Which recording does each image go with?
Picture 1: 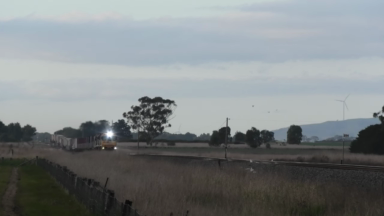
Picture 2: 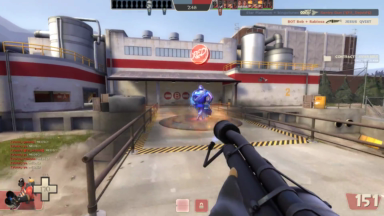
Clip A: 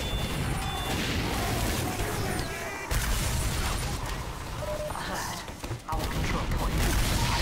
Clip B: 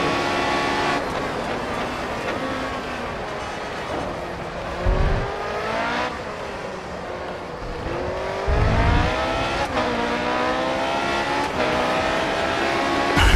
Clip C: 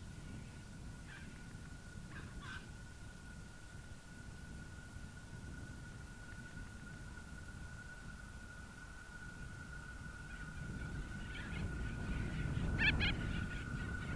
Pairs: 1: C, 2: A